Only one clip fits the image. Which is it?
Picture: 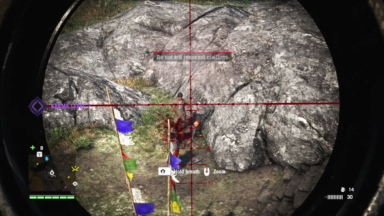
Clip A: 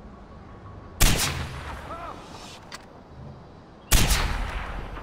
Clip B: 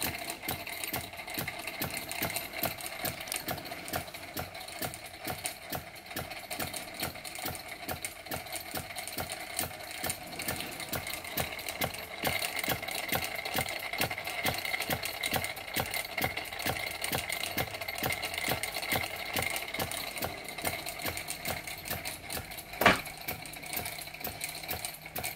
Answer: A